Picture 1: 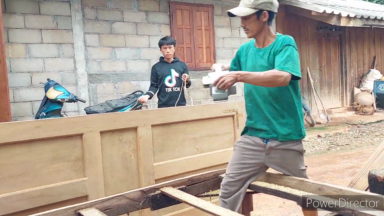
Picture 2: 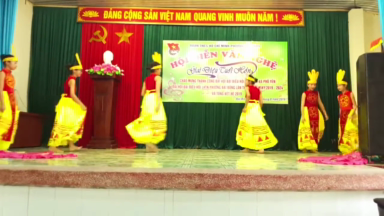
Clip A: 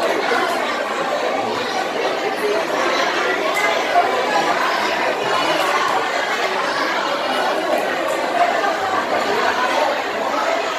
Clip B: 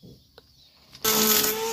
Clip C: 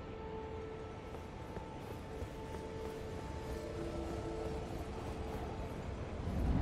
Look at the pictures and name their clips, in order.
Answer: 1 B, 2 A